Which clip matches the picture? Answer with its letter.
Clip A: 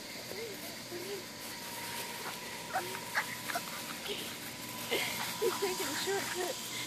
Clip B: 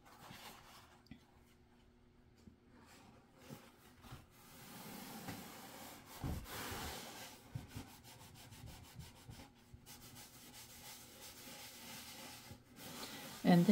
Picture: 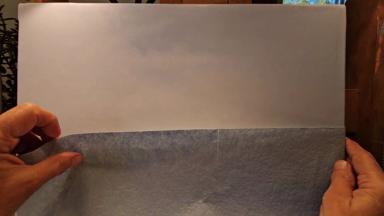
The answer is B